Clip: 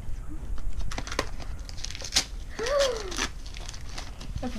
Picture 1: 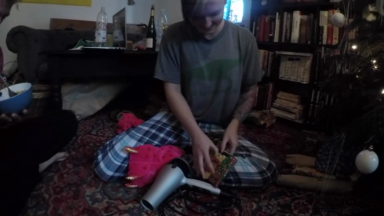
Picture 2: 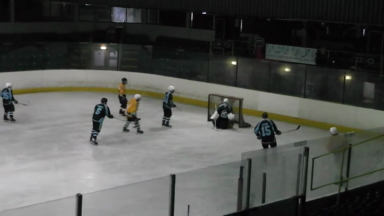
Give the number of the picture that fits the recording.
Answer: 1